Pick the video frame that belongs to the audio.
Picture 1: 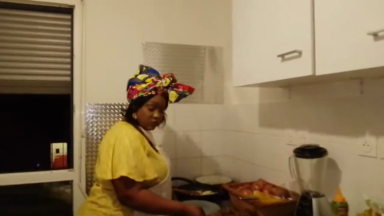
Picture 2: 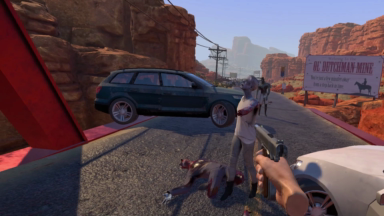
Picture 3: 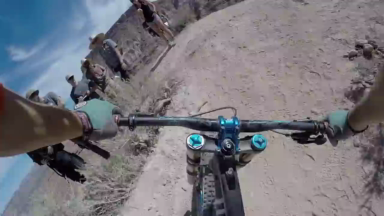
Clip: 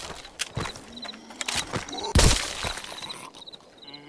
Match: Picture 2